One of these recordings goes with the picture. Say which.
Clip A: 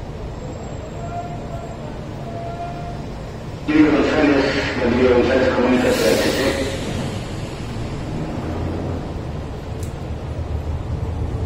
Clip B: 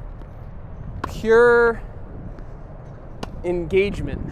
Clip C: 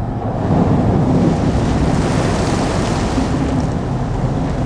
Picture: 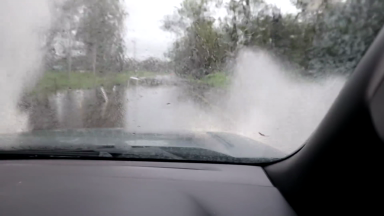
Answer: C